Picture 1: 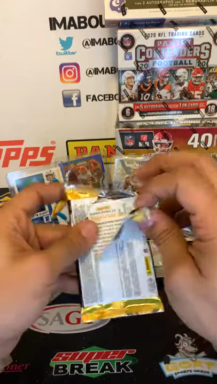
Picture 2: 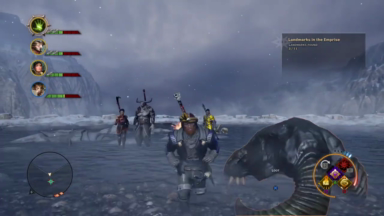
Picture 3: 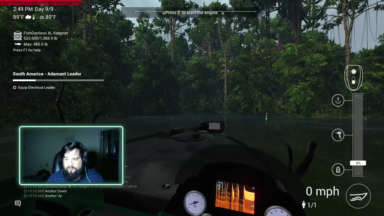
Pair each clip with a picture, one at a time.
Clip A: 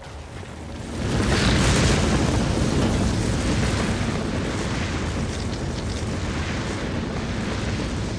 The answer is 2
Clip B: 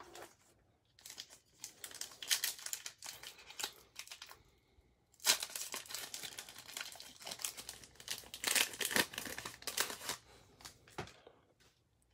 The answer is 1